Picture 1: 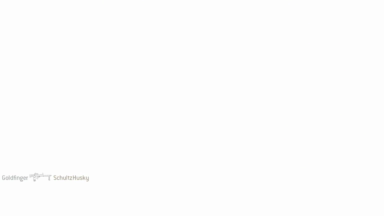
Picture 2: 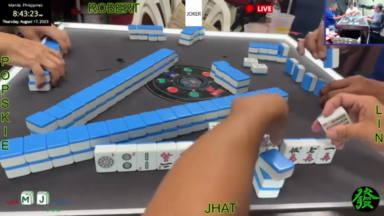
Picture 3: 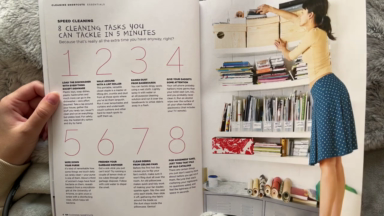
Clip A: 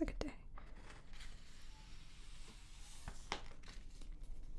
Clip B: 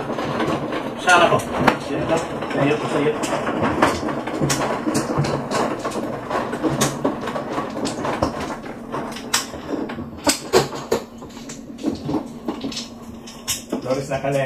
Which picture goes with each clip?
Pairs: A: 3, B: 2